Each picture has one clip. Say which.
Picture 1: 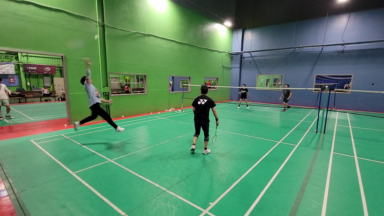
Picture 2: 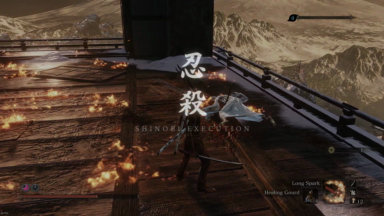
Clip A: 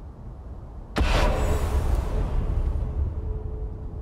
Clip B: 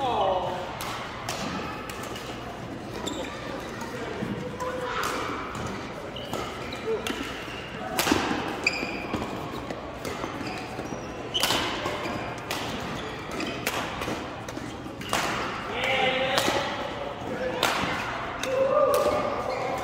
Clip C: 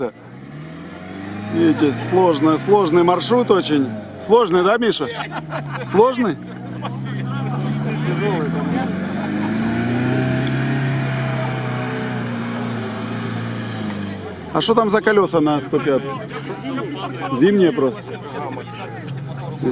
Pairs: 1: B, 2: A